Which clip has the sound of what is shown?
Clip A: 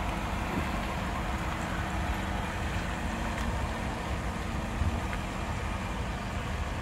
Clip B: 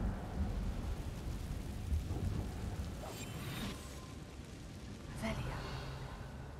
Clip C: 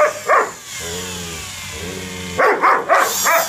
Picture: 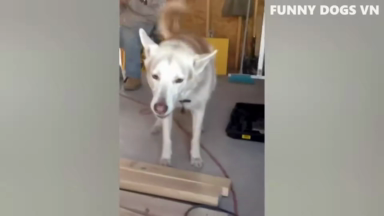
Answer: C